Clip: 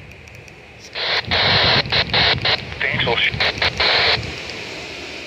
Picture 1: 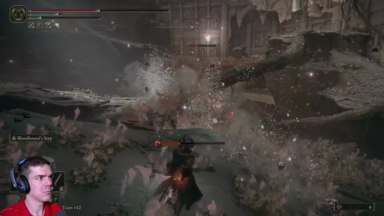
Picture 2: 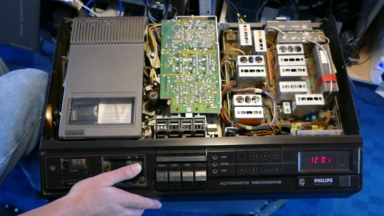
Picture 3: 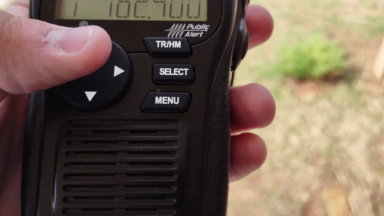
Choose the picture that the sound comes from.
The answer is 3